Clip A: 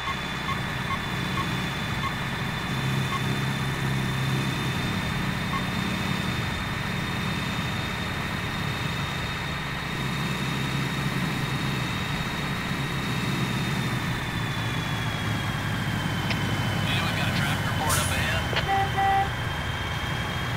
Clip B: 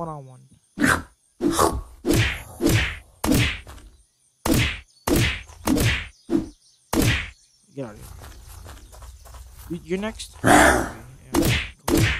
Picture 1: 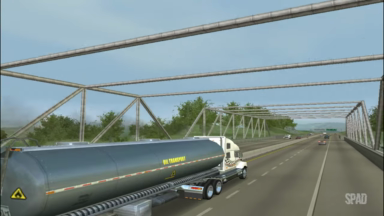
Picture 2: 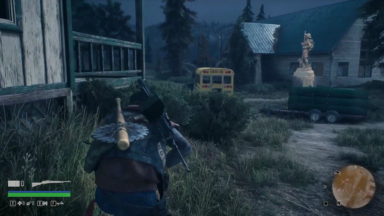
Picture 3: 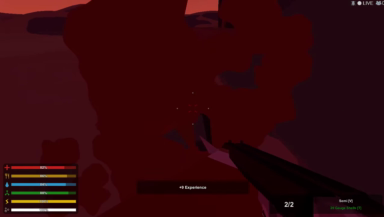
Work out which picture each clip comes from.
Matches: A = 1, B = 3